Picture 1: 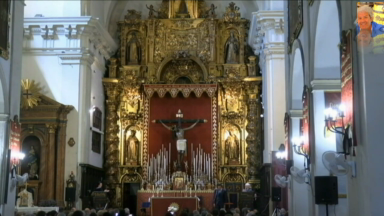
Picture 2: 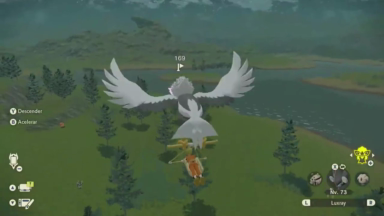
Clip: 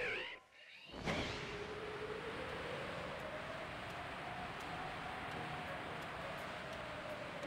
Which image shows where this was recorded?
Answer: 2